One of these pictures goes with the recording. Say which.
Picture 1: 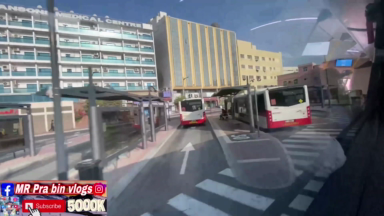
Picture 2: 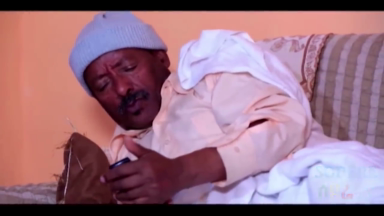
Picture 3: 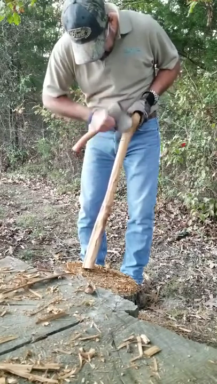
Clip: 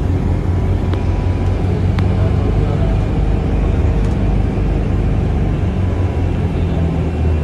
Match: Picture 1